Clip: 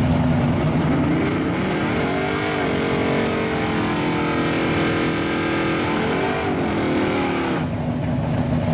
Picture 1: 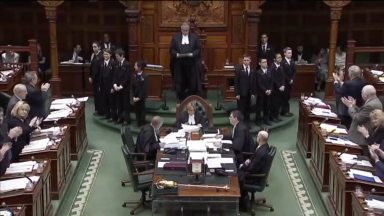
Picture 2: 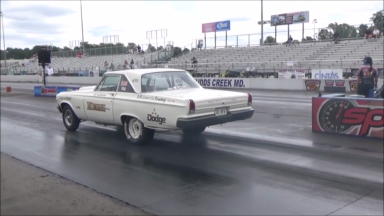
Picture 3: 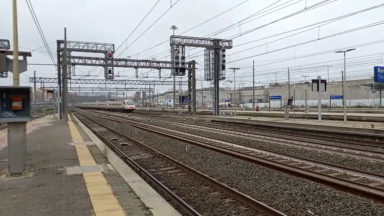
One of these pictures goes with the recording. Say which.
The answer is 2